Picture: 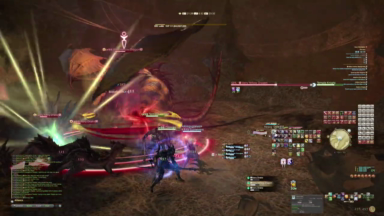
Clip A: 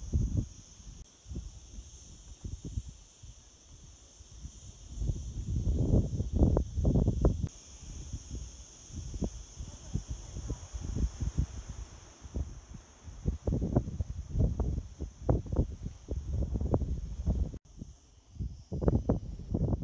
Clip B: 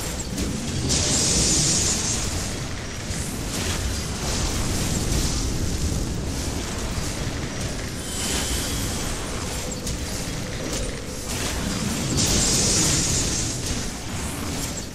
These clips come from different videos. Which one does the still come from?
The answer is B